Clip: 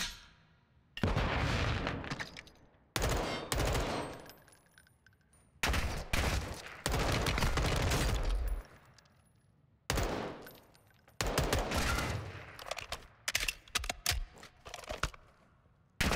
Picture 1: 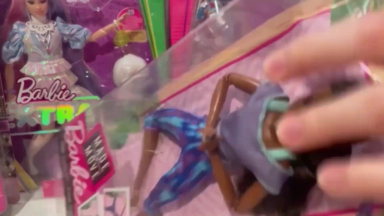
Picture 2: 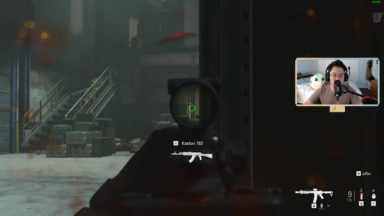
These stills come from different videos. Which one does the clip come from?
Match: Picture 2